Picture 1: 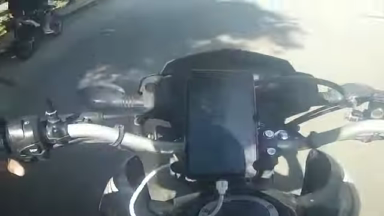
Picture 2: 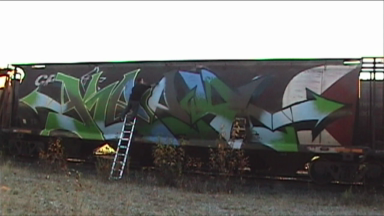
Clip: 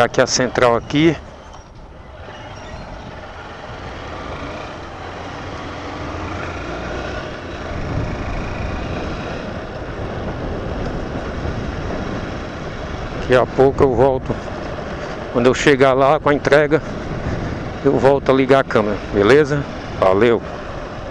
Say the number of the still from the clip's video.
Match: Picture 1